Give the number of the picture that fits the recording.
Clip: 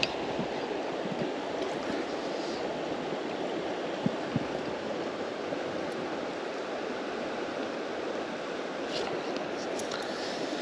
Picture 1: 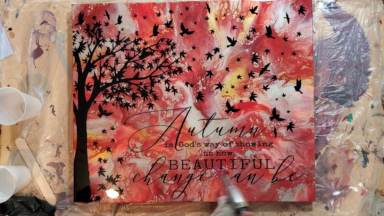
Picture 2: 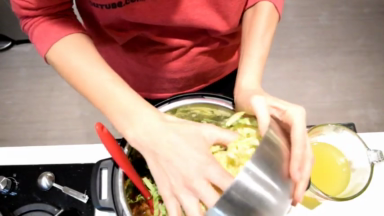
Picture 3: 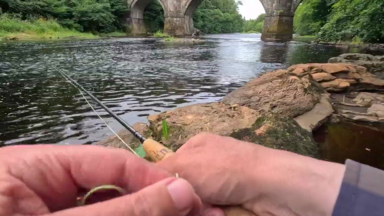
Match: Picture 3